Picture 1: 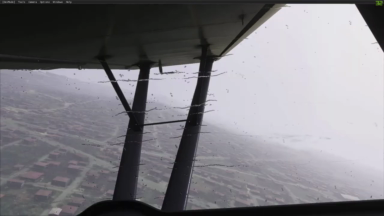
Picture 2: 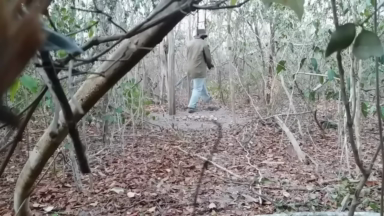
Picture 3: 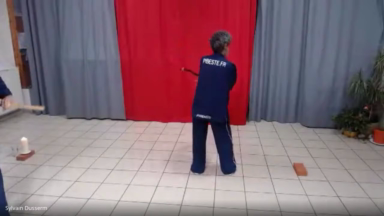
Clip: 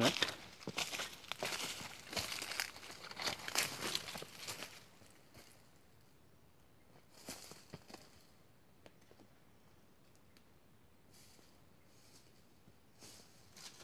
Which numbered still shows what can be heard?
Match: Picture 2